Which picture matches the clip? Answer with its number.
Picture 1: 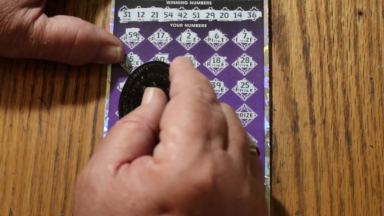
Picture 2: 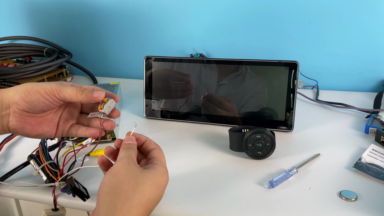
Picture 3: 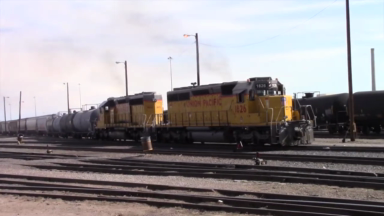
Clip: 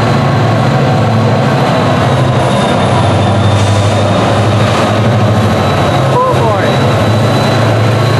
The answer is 3